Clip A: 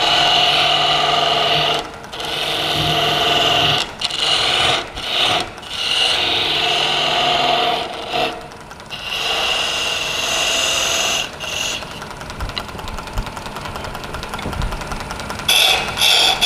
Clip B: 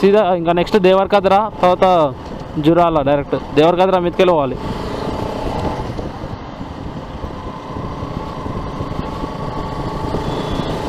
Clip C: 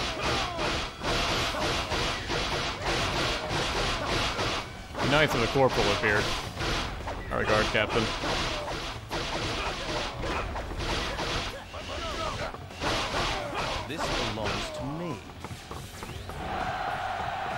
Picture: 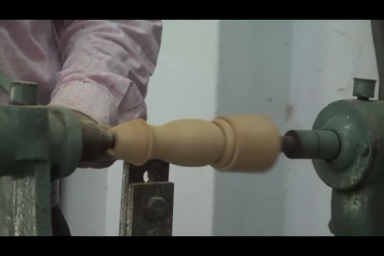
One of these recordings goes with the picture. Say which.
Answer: A